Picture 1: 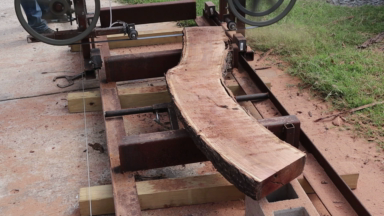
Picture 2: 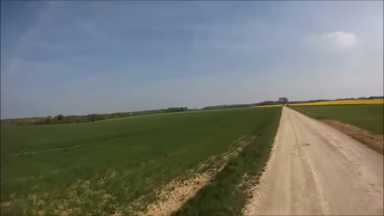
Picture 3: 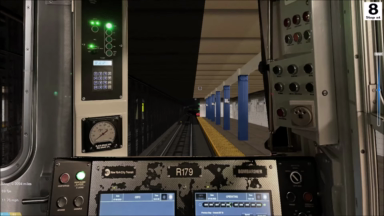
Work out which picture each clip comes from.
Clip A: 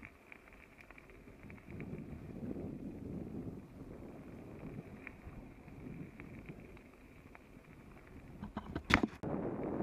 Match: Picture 2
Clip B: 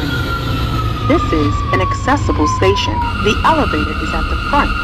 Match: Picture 3